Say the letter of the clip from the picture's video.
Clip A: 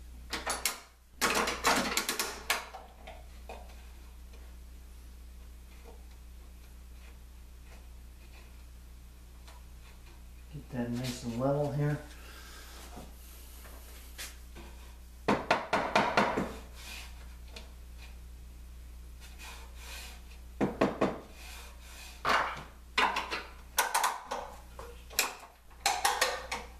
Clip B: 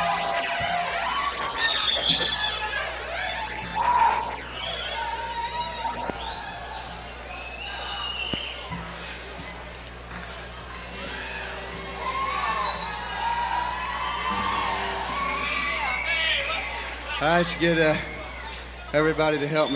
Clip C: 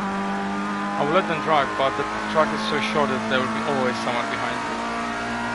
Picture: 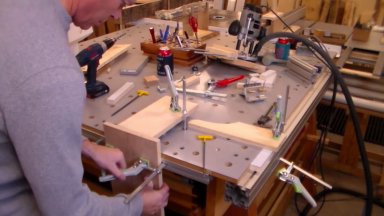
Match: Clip A